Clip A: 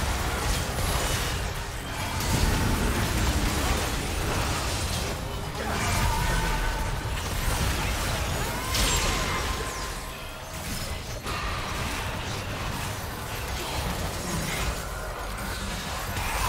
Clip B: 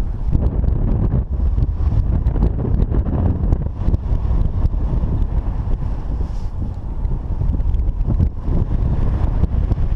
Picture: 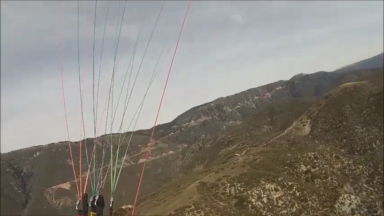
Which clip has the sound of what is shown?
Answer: B